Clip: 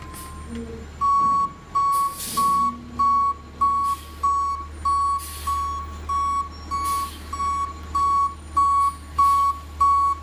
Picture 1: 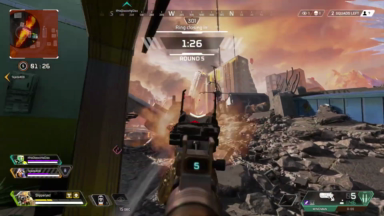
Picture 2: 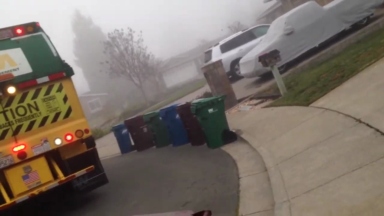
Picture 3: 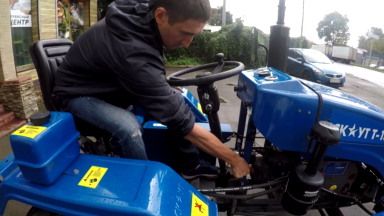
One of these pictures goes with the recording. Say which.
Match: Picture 2